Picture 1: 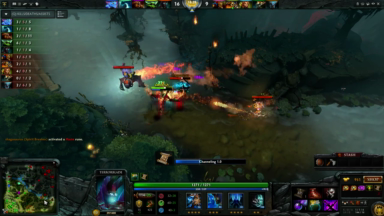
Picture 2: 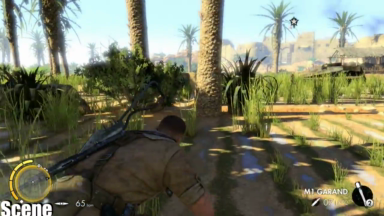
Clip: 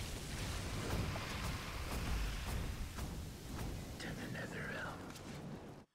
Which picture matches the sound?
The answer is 1